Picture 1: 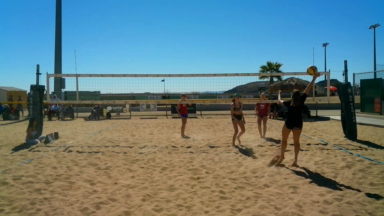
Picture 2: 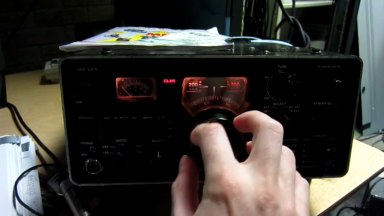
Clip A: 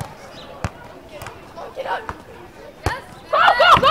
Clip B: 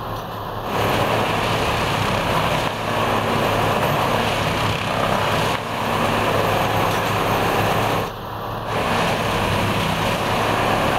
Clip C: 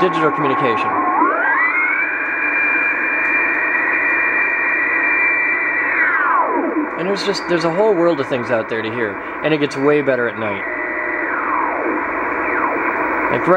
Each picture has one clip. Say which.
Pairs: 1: A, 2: C